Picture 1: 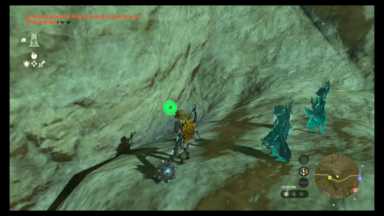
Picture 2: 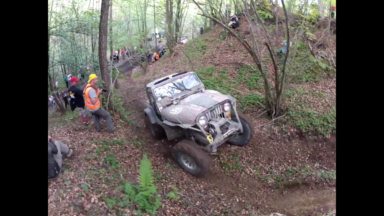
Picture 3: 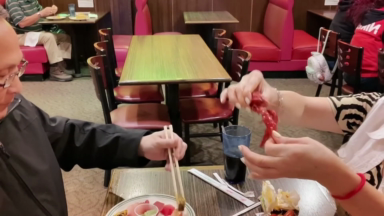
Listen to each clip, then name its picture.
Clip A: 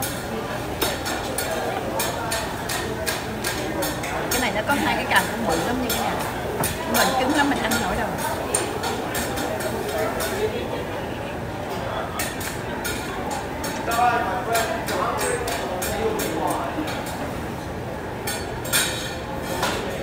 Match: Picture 3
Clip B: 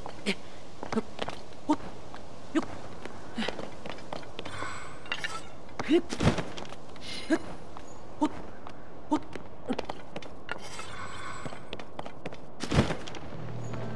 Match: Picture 1